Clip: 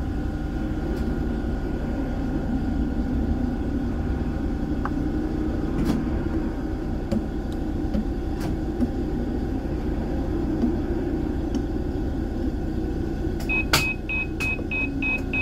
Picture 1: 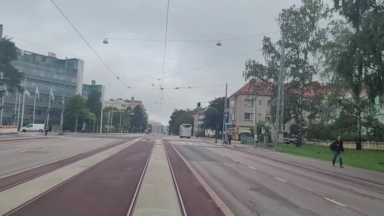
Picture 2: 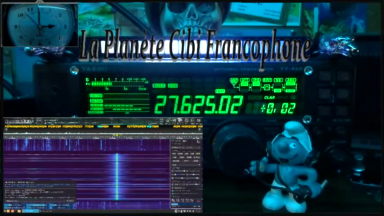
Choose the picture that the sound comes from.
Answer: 1